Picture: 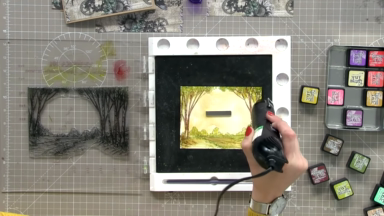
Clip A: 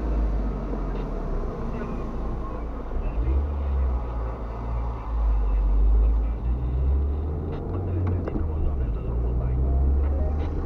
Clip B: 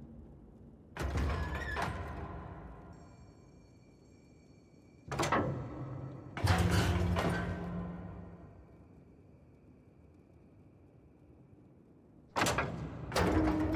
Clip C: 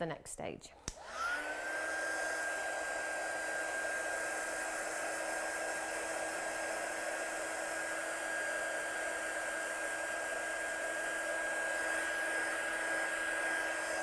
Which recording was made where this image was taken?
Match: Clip C